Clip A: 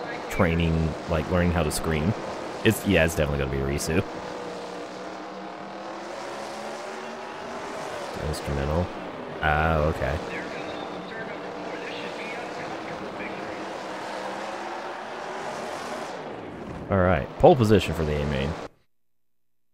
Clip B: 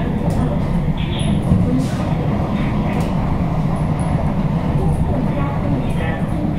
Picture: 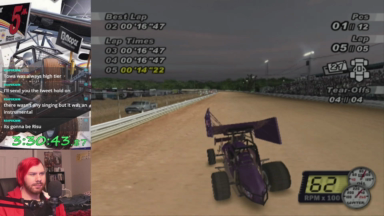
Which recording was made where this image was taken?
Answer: A